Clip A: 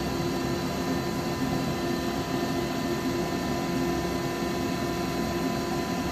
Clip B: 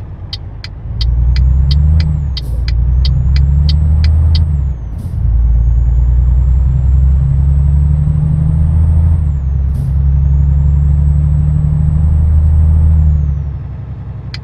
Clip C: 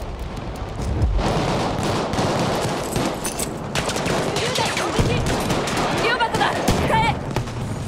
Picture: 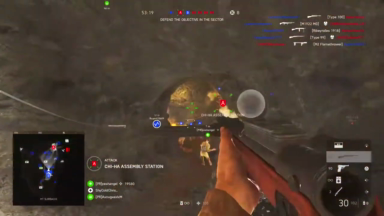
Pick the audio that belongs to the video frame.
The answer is C